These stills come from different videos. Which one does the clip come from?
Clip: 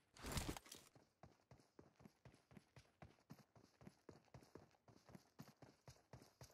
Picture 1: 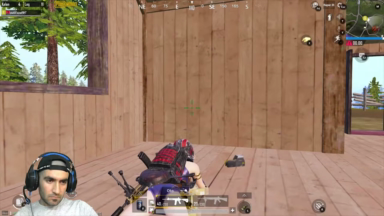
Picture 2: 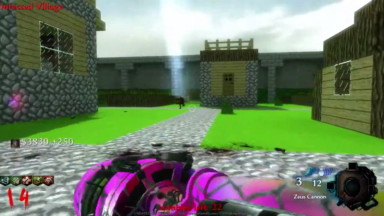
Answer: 1